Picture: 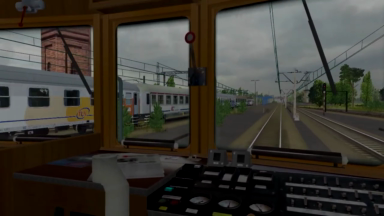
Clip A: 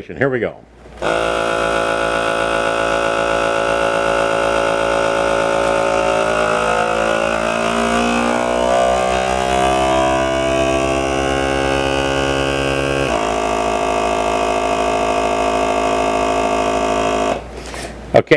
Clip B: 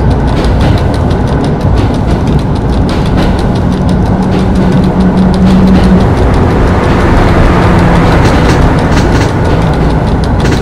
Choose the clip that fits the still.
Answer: B